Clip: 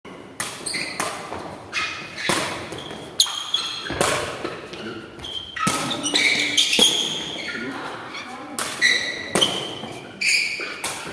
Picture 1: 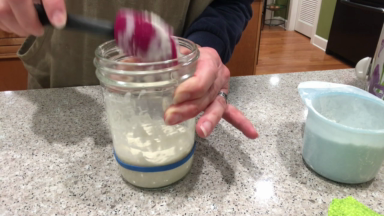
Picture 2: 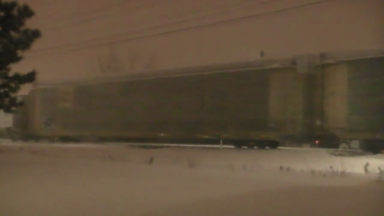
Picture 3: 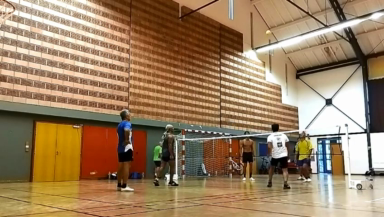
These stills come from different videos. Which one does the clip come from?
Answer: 3